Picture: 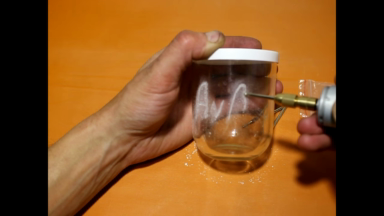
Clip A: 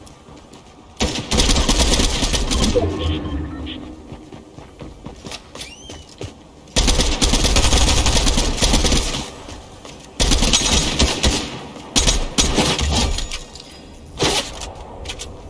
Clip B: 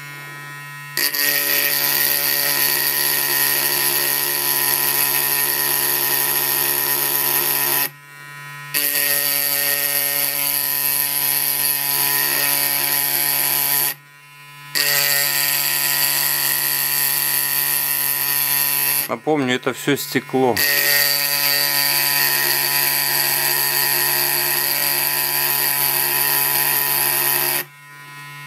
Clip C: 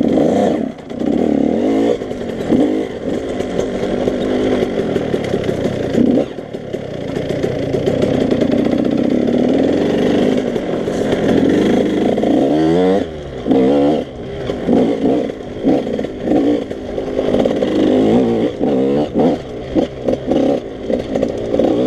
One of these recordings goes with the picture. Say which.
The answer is B